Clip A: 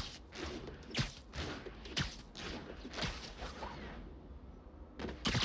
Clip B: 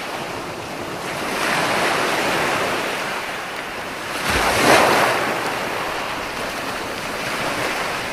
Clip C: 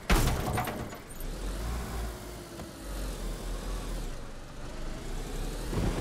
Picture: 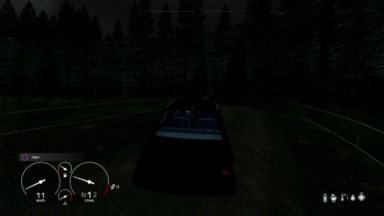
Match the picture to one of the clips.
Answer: C